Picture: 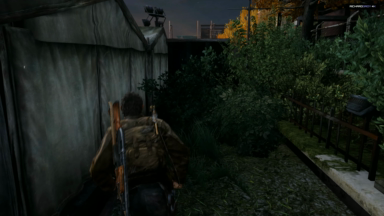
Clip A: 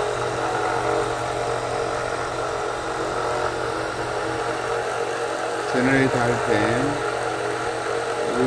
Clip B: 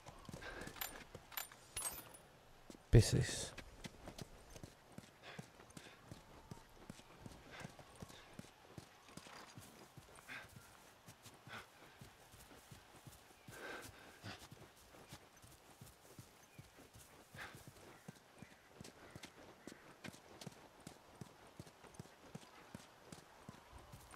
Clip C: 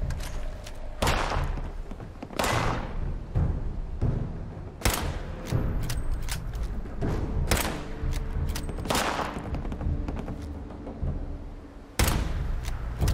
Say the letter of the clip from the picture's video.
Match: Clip B